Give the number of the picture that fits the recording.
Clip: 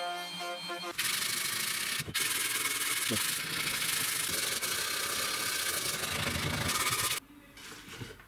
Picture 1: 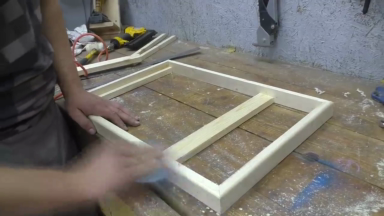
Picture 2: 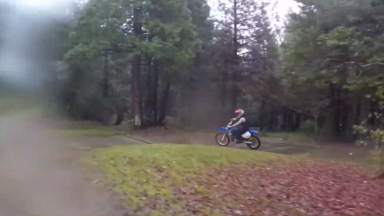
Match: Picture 1